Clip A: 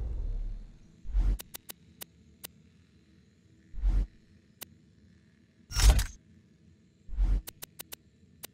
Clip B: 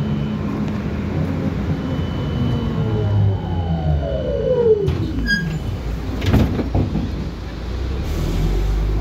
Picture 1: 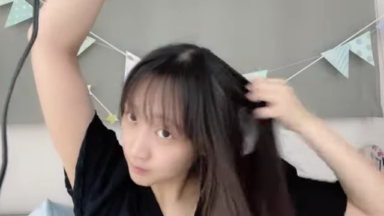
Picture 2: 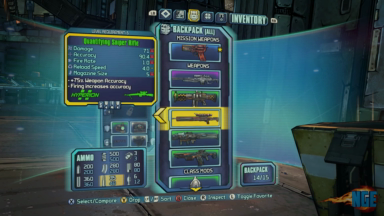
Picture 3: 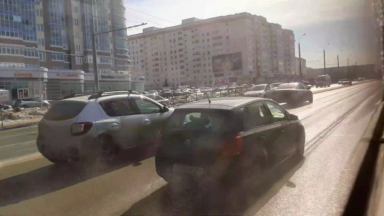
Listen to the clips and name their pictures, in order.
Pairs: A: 2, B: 3